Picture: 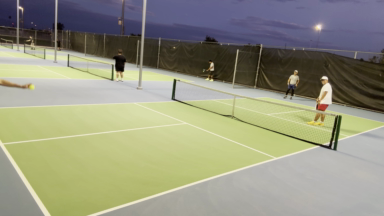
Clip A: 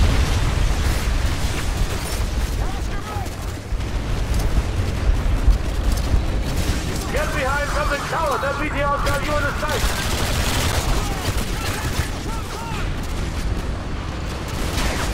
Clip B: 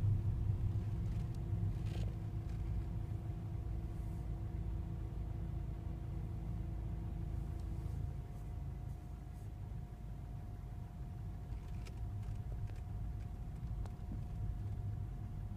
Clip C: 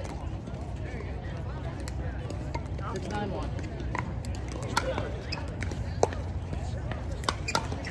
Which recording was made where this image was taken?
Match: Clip C